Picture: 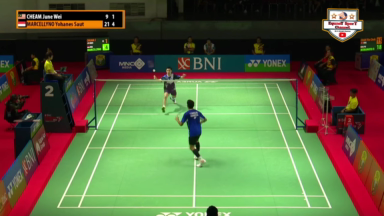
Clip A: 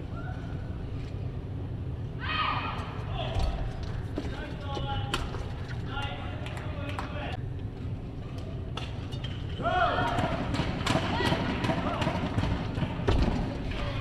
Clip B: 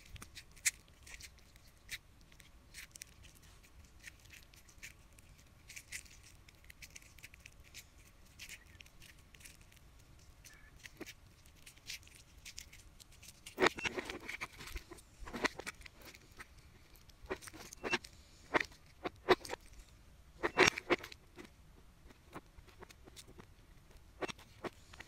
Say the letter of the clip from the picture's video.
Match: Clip A